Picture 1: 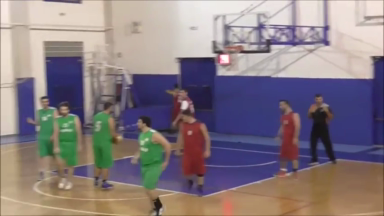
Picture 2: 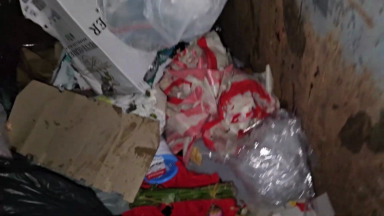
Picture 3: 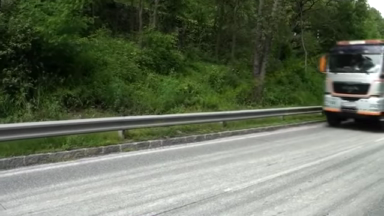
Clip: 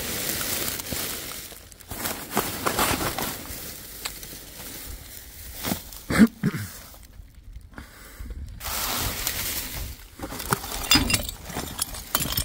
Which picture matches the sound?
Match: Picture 2